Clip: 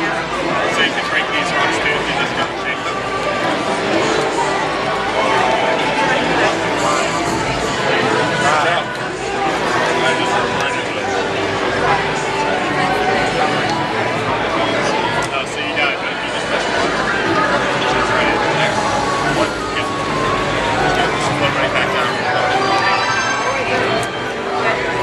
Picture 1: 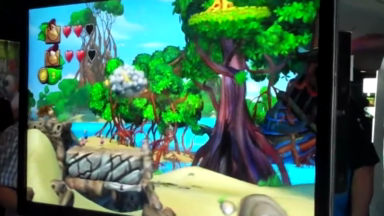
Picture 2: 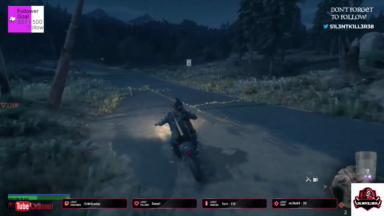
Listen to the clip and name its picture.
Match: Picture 1